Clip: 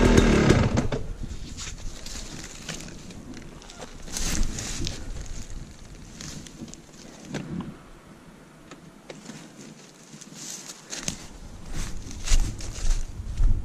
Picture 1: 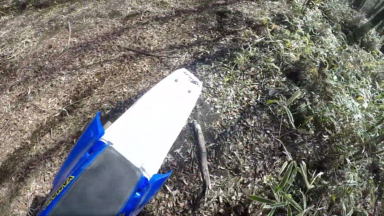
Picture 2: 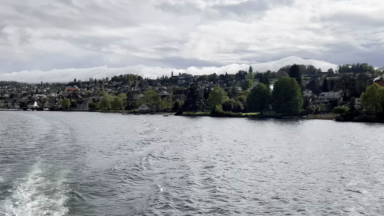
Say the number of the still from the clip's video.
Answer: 1